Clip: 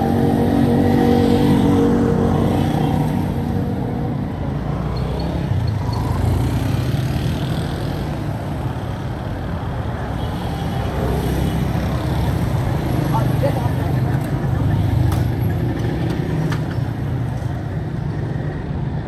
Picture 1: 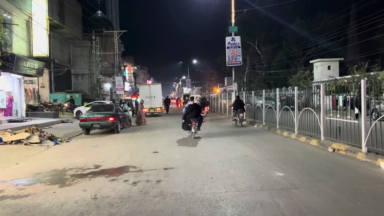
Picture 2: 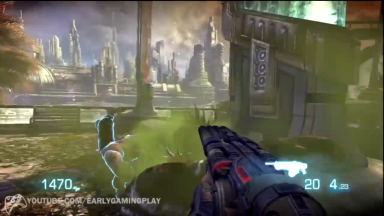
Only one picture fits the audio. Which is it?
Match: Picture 1